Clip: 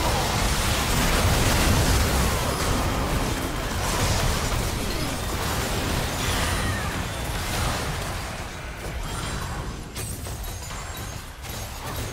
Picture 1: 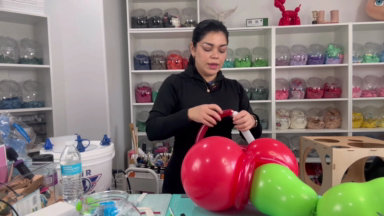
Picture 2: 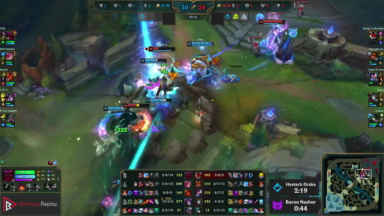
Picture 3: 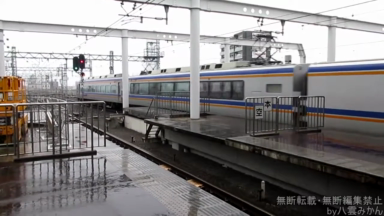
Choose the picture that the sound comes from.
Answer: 2